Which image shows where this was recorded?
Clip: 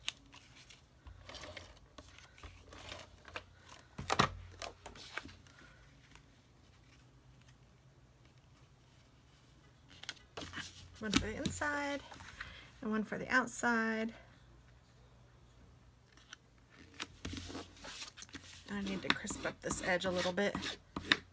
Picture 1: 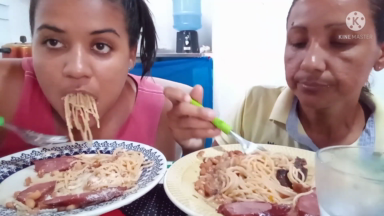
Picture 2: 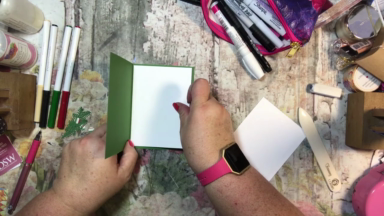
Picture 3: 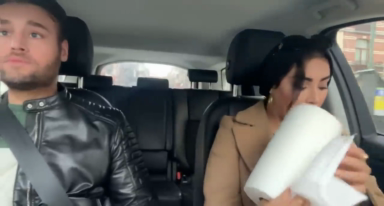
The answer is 2